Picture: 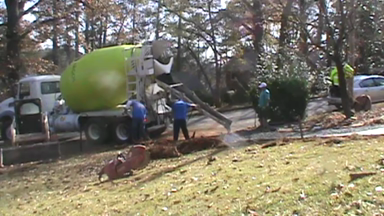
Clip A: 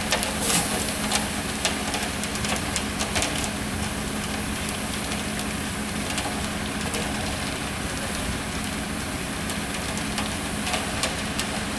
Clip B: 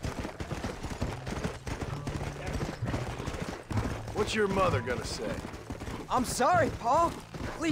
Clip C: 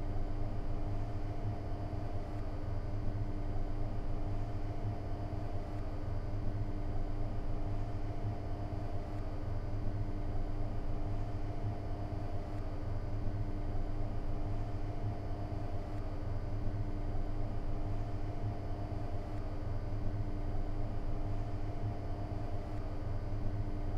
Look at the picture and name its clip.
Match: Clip A